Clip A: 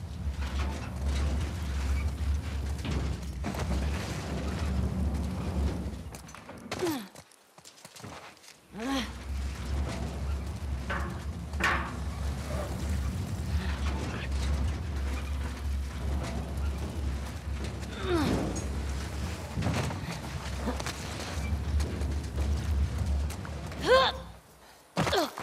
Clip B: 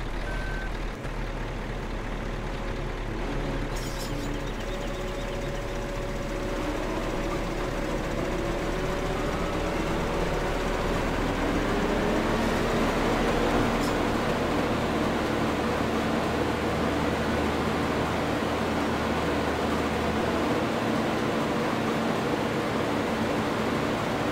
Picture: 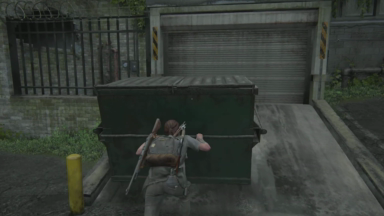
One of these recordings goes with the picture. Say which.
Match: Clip A